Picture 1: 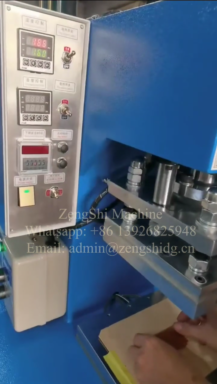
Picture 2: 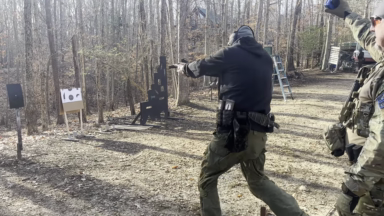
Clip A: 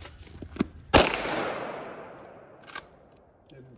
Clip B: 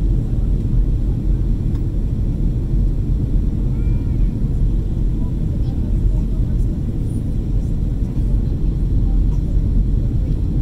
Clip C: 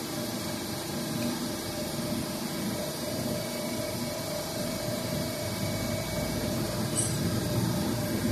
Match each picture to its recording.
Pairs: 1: C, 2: A